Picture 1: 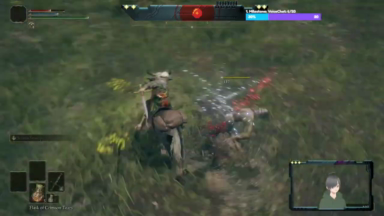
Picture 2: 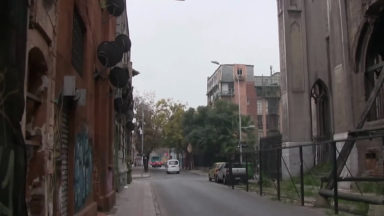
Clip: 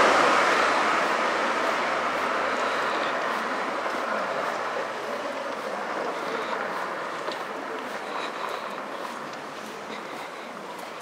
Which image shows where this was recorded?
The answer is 2